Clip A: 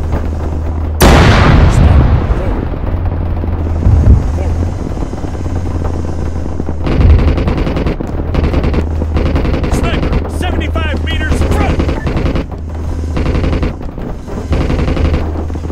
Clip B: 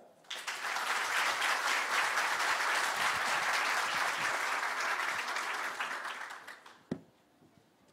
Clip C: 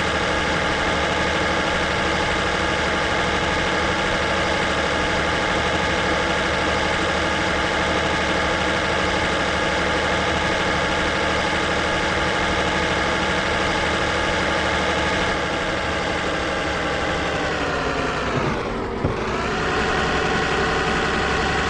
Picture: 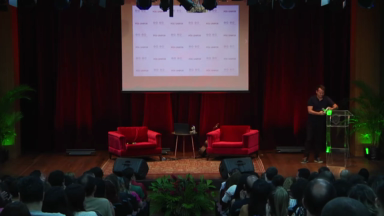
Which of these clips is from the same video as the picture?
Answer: B